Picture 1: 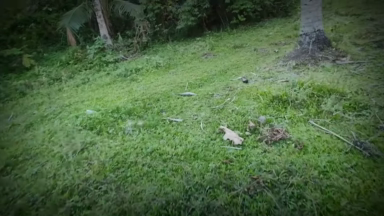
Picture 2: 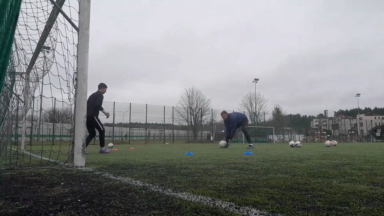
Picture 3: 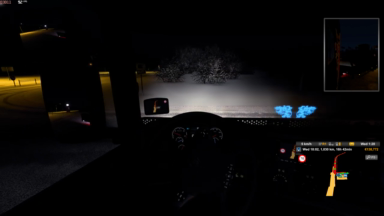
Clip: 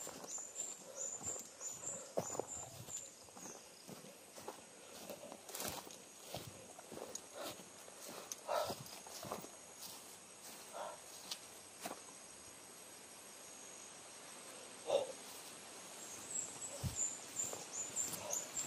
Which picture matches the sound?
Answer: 1